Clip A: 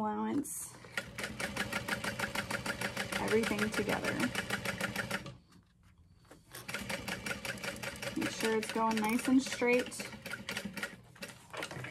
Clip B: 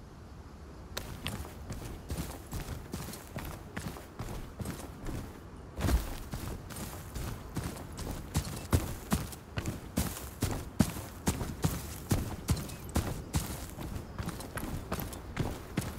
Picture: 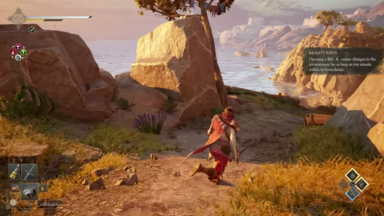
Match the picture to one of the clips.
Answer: B